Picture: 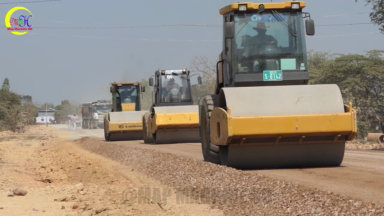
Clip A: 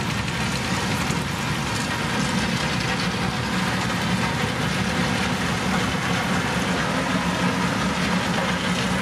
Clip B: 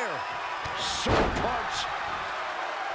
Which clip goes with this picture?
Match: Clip A